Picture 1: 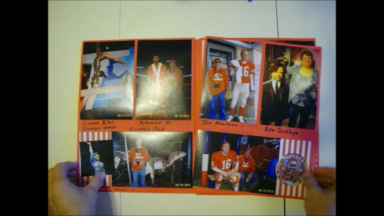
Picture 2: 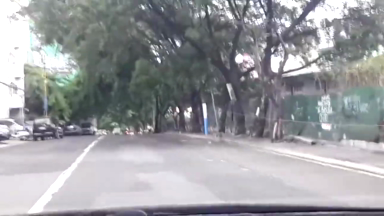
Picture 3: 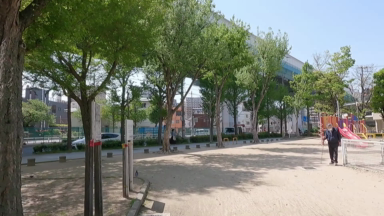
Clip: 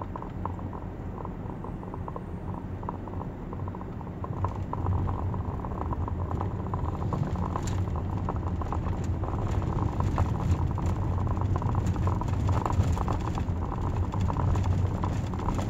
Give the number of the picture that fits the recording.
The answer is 2